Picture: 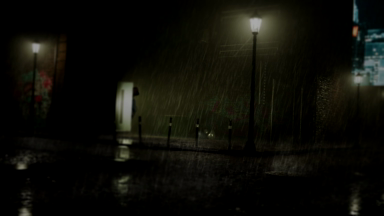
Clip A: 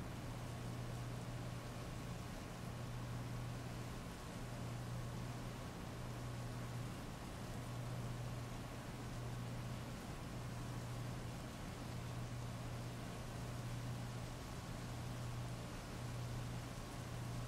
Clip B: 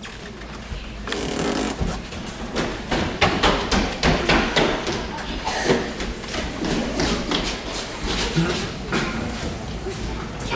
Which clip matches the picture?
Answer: A